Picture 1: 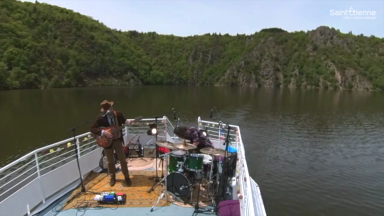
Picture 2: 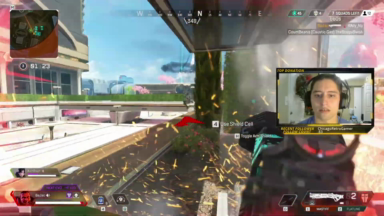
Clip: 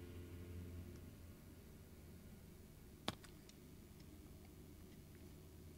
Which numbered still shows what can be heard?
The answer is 1